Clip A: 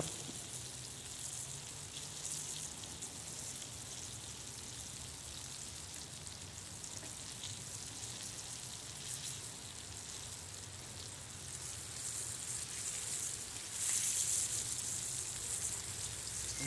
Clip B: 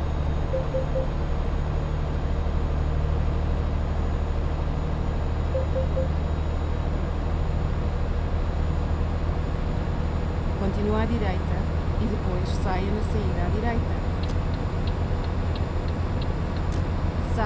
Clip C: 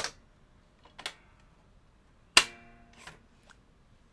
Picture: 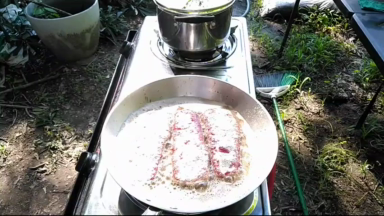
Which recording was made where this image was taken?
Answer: A